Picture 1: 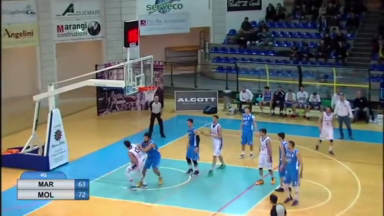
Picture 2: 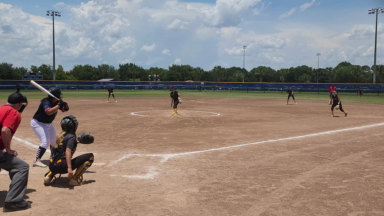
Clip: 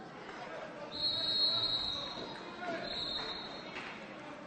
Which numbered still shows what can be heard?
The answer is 1